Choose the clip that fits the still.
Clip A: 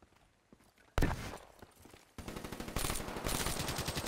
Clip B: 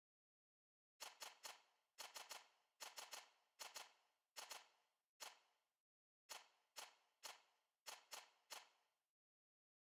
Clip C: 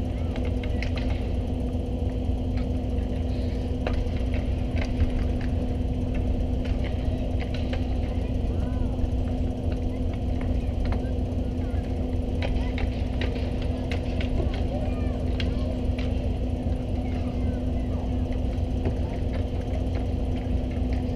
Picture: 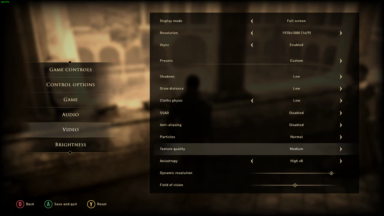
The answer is B